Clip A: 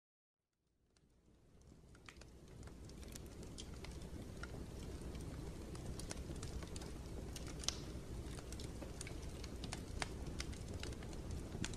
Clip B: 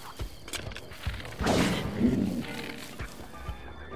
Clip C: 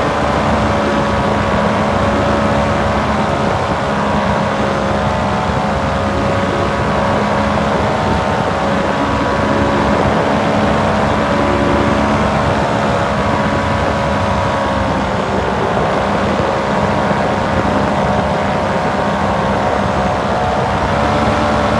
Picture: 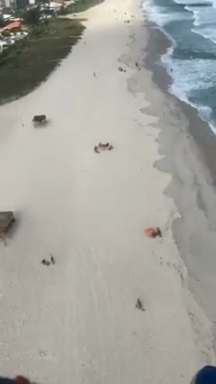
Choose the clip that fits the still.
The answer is C